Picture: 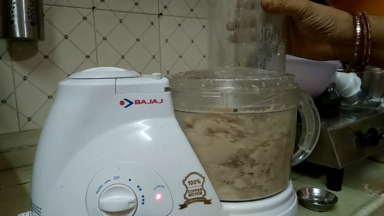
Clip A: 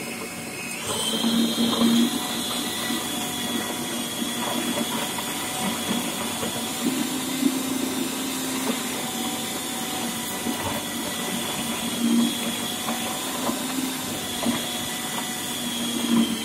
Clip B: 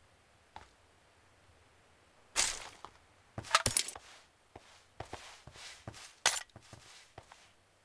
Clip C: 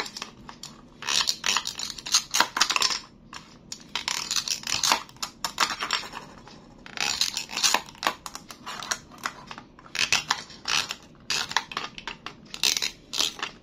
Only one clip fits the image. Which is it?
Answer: A